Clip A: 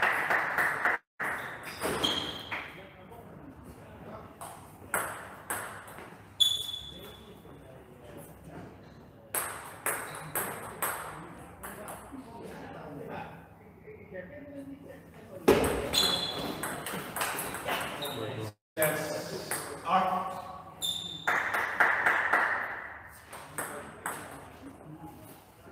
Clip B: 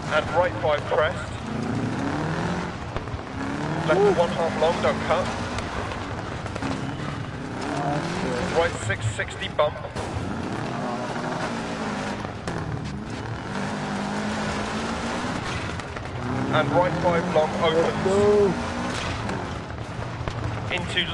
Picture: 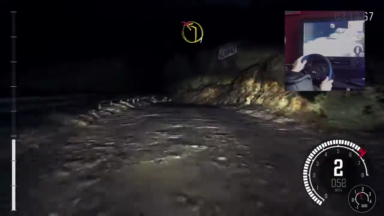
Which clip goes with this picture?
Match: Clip B